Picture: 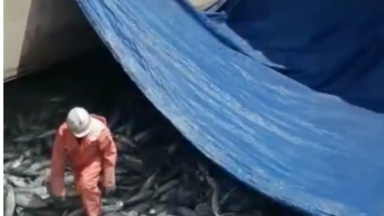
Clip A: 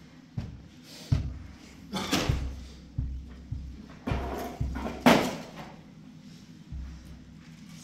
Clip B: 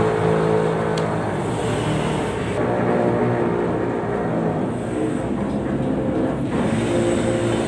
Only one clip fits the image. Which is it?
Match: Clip B